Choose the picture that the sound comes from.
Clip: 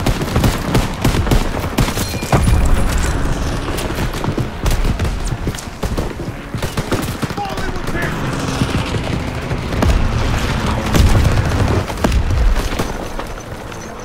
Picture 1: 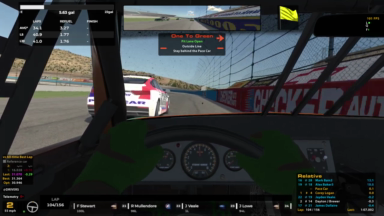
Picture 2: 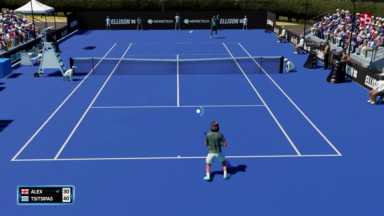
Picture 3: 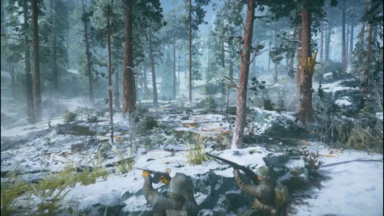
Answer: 3